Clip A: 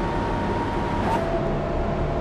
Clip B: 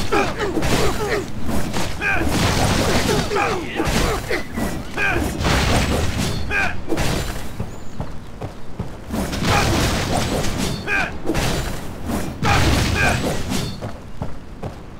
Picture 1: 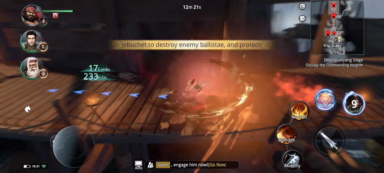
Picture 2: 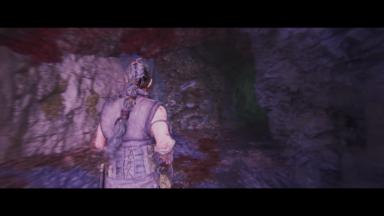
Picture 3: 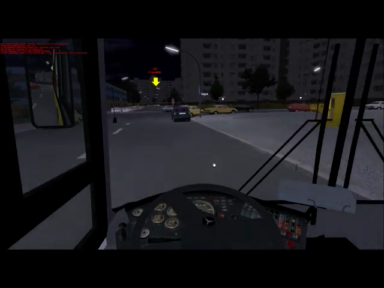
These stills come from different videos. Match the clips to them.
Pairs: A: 3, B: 1